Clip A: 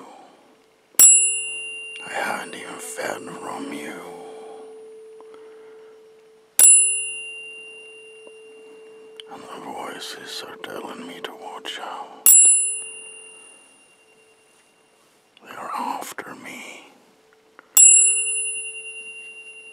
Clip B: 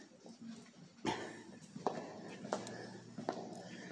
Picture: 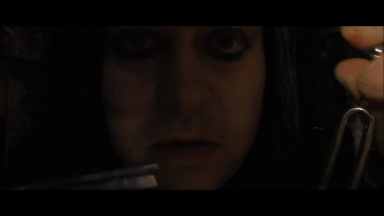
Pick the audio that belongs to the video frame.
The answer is A